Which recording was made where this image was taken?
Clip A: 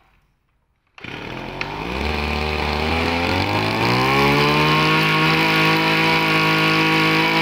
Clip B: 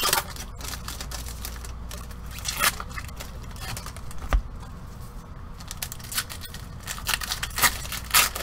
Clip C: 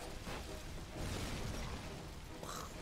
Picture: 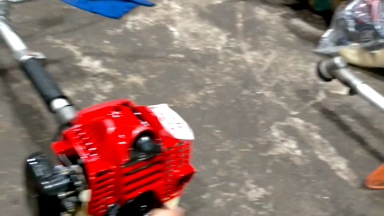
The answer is A